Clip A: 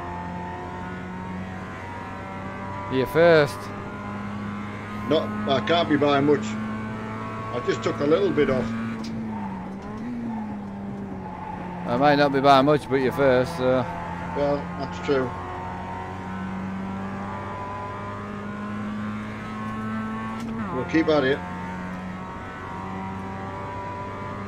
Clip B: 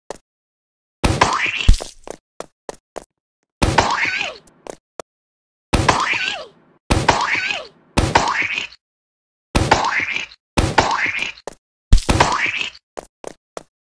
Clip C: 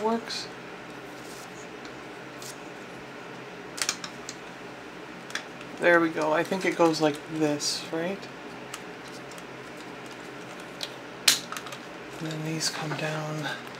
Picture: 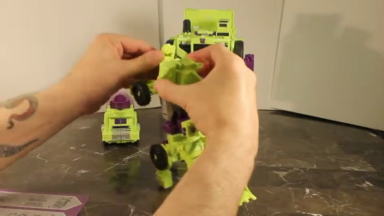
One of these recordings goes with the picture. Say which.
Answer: C